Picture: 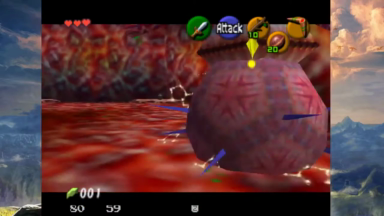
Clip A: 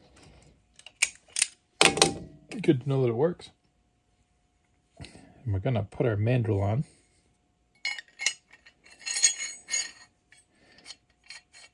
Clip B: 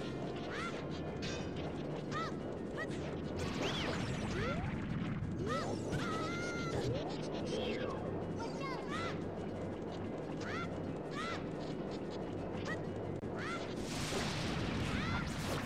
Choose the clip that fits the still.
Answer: B